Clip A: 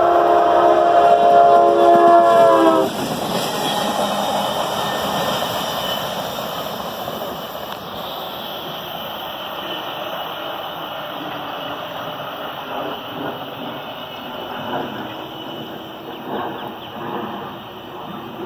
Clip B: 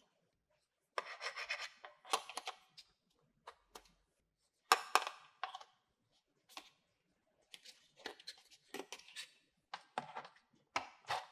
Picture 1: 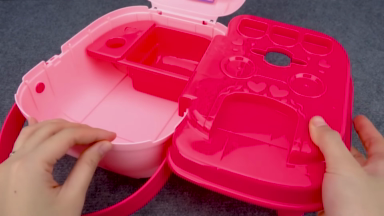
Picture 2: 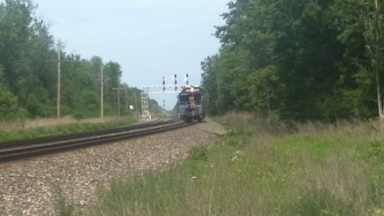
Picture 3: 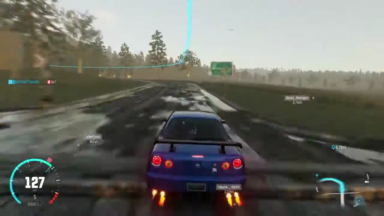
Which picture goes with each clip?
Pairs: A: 2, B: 1